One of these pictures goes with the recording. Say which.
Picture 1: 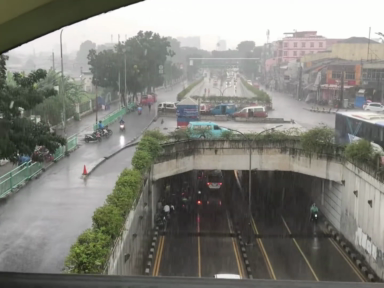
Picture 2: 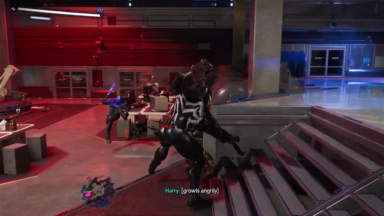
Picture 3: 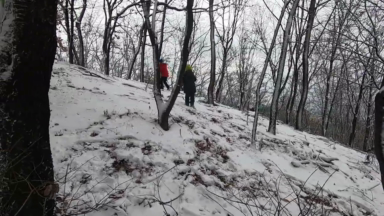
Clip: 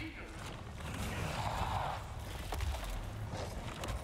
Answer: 2